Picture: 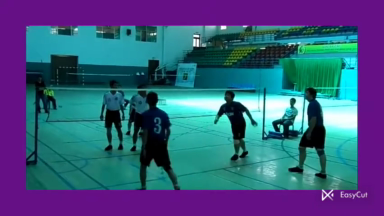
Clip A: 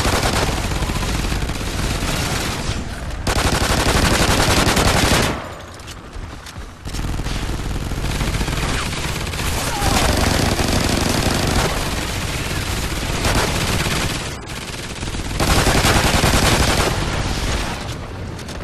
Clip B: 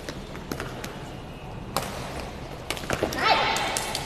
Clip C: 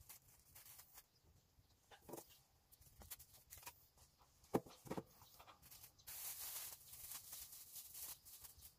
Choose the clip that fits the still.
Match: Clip B